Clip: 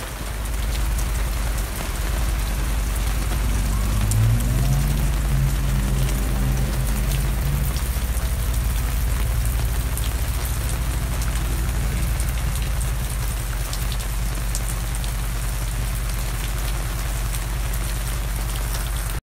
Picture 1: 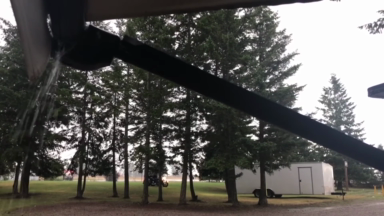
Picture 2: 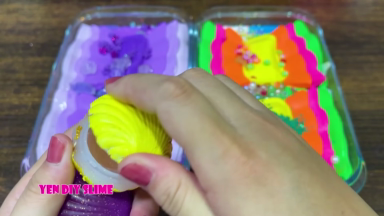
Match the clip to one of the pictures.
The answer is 1